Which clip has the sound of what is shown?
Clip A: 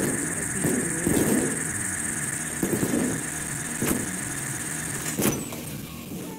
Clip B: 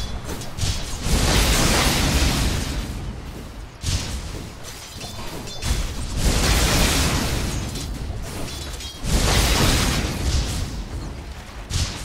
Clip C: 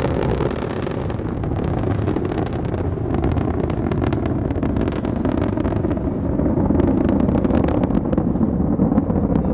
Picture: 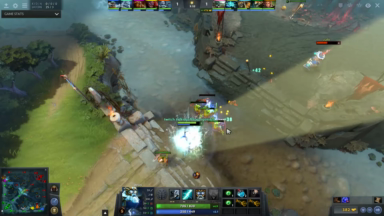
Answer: B